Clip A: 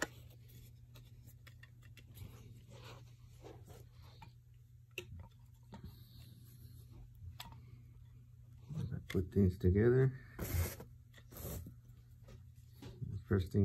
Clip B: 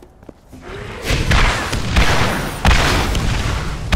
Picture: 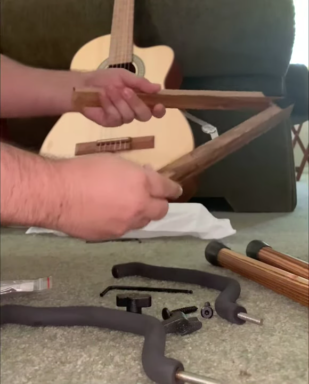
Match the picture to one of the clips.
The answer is A